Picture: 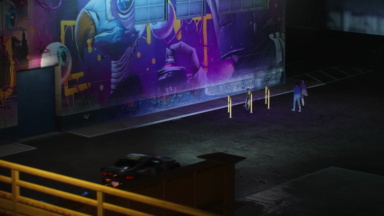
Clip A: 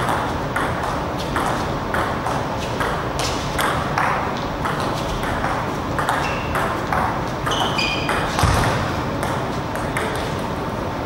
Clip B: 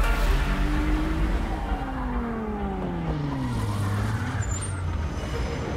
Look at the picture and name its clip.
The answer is B